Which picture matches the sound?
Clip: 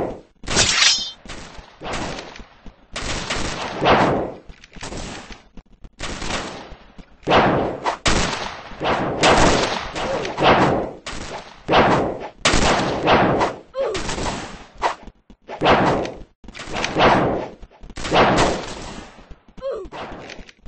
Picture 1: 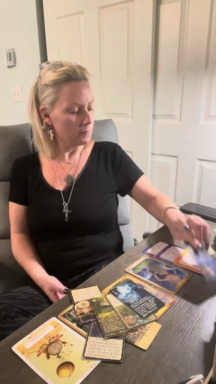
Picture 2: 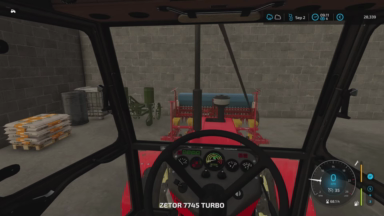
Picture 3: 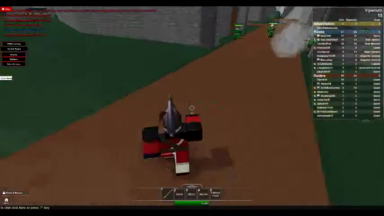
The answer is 3